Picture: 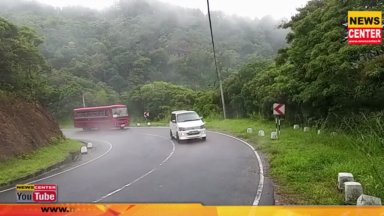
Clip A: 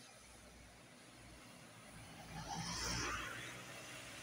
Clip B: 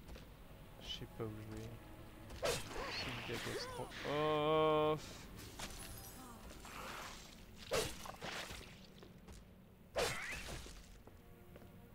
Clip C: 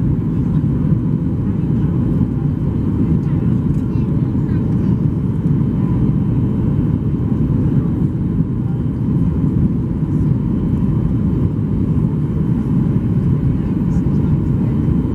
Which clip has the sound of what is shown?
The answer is A